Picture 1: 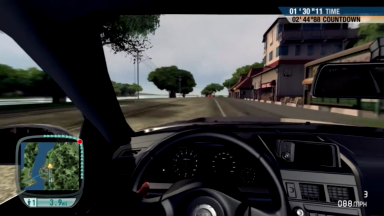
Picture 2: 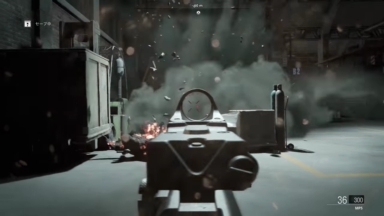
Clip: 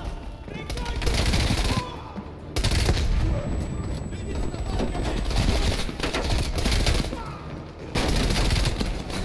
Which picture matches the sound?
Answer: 2